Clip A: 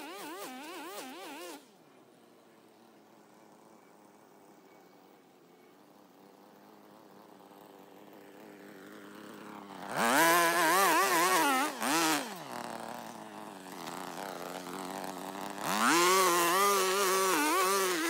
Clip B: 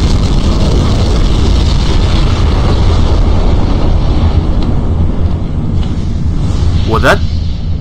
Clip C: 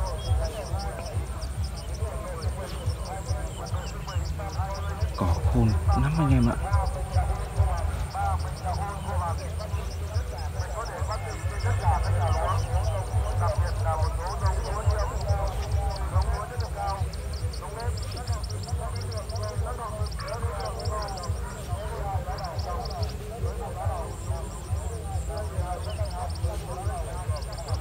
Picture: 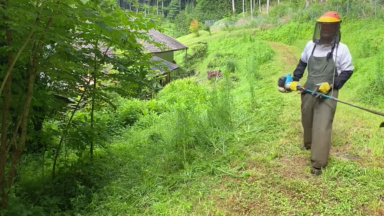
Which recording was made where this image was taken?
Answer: A